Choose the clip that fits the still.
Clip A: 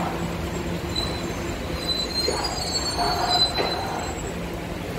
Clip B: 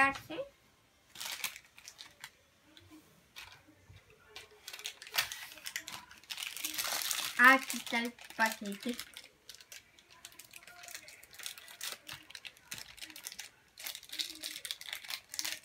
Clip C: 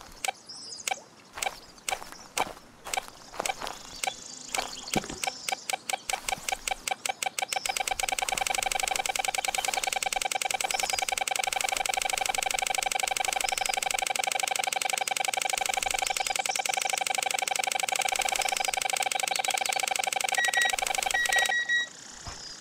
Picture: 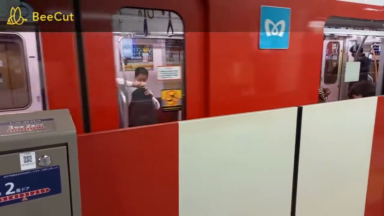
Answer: A